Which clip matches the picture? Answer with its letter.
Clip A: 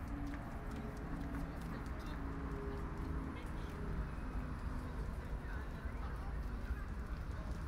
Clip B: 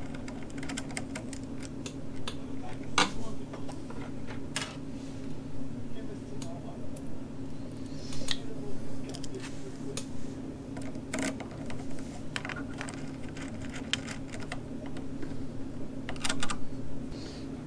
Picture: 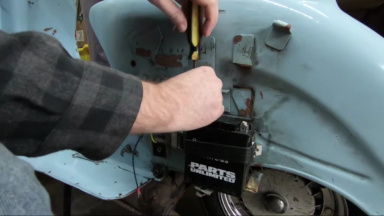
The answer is B